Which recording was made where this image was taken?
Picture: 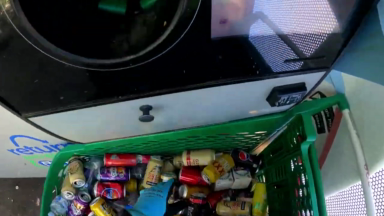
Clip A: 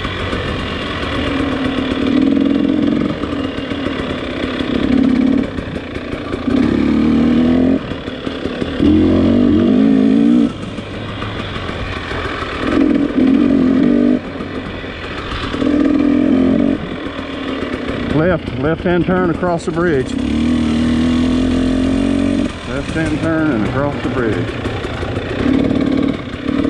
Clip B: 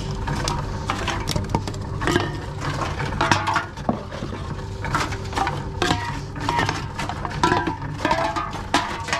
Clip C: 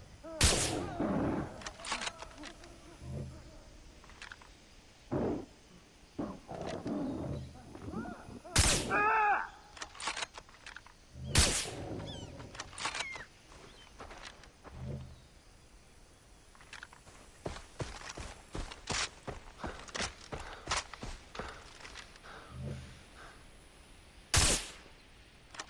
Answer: B